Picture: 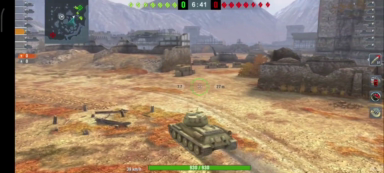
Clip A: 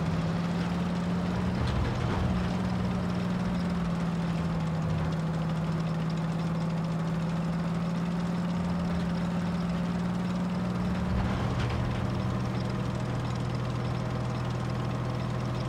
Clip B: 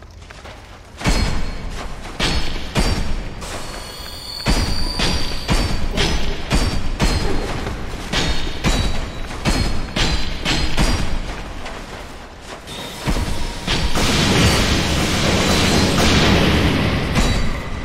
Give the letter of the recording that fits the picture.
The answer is A